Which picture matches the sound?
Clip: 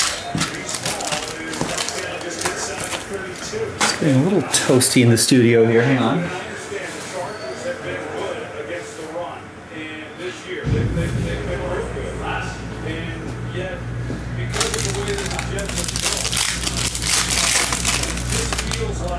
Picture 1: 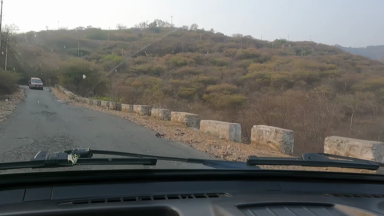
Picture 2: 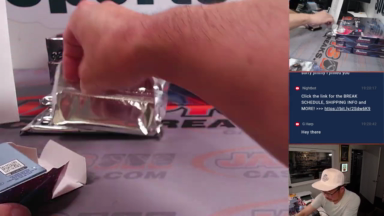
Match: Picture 2